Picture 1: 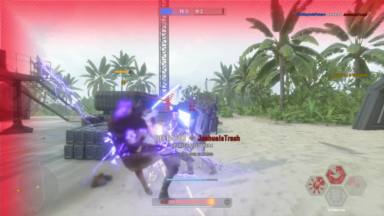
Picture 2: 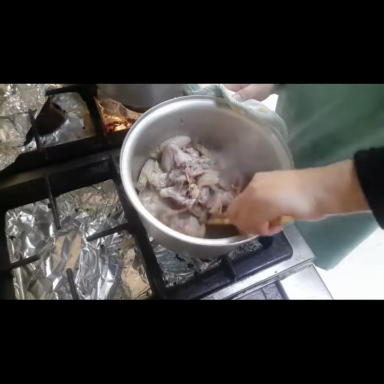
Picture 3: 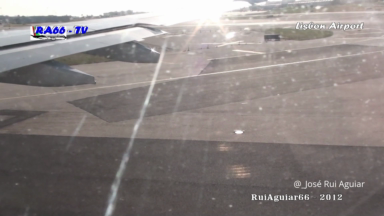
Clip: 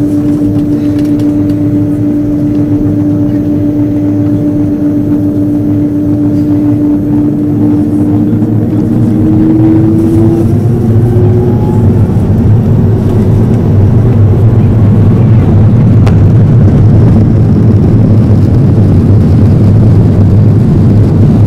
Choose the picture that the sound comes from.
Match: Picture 3